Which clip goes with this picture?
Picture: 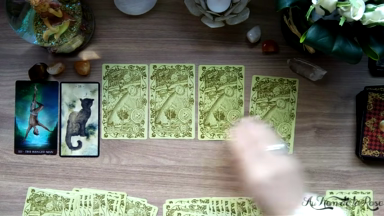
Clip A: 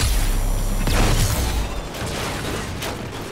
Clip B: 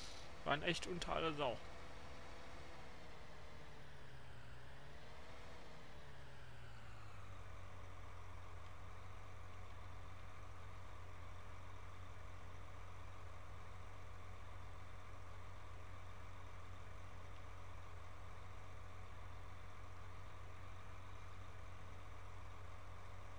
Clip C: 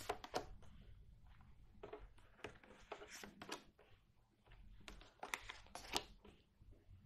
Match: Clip C